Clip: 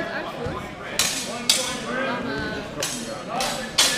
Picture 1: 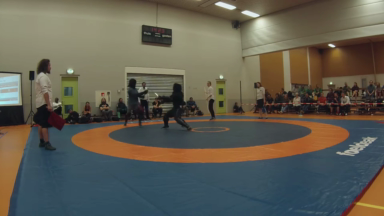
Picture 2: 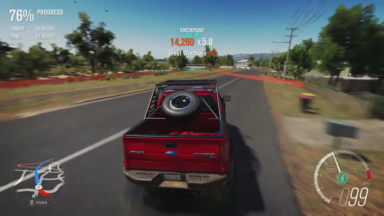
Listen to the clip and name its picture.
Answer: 1